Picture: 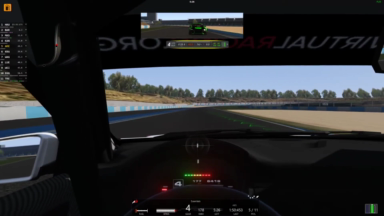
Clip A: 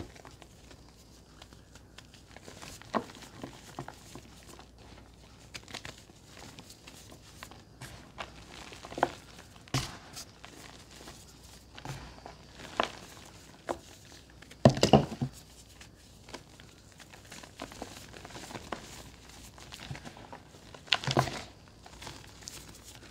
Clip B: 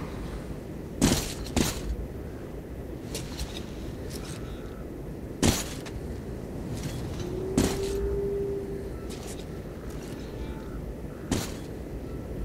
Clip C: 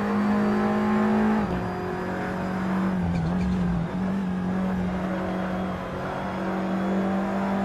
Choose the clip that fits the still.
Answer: C